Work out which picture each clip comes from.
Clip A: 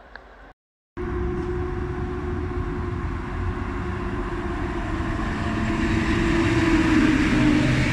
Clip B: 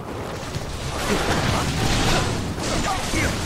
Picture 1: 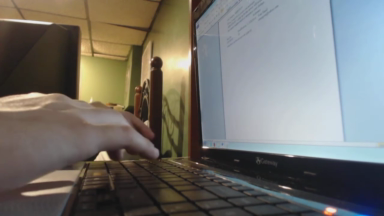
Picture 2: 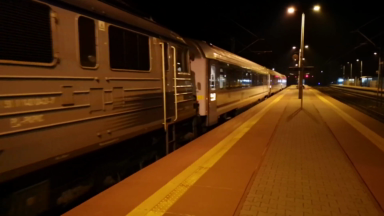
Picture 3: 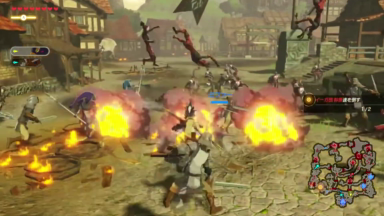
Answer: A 2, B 3